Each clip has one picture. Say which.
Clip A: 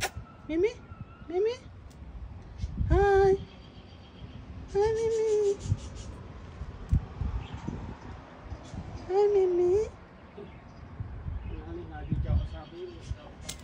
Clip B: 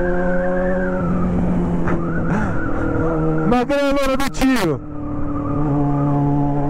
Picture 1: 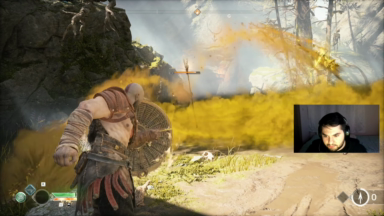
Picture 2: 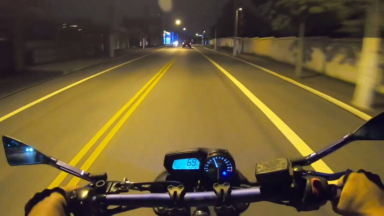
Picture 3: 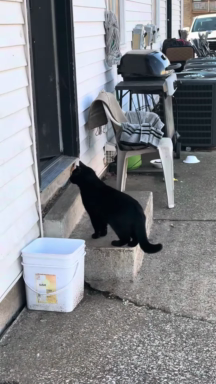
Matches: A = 3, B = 2